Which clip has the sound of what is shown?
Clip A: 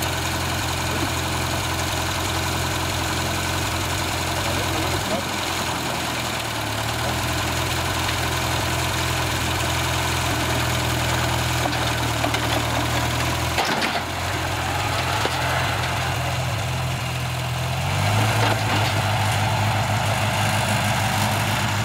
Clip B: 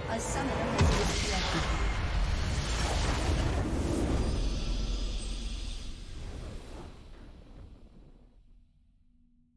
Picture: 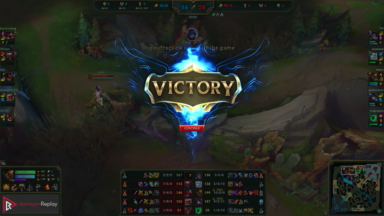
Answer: B